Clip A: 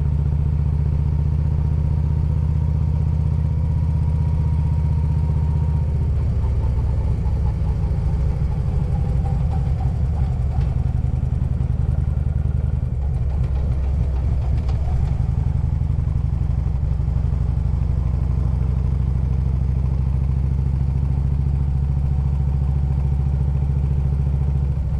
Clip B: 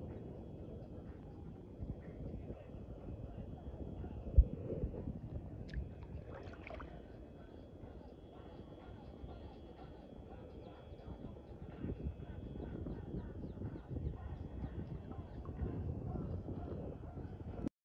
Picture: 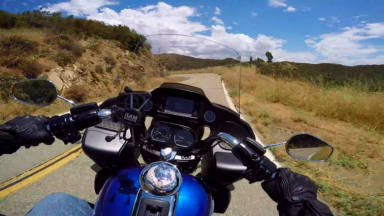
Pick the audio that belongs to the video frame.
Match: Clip A